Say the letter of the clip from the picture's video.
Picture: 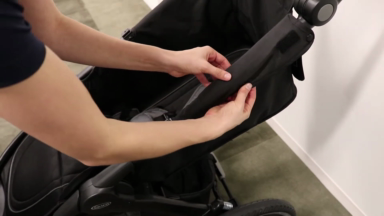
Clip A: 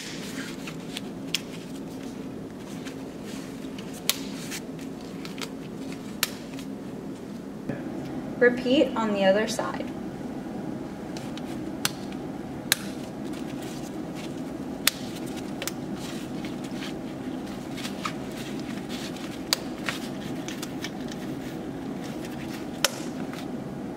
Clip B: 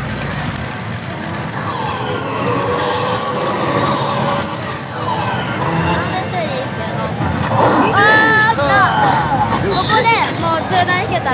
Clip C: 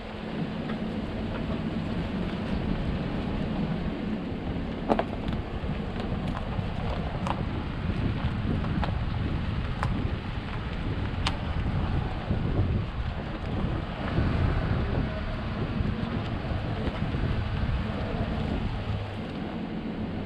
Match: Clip A